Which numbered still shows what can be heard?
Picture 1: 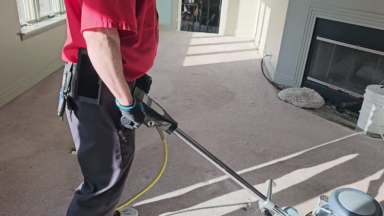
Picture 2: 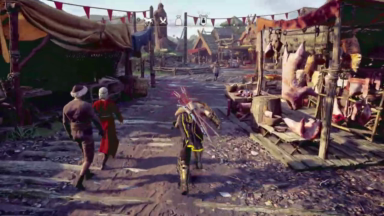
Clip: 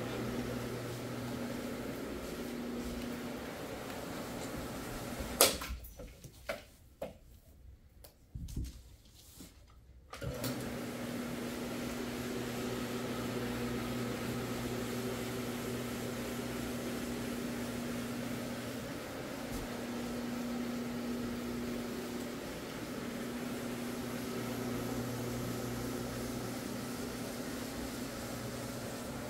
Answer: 1